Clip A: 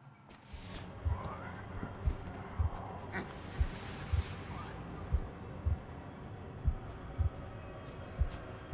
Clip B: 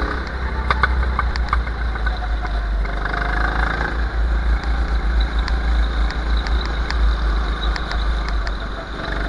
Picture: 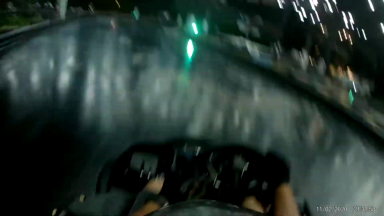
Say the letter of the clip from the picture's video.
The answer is B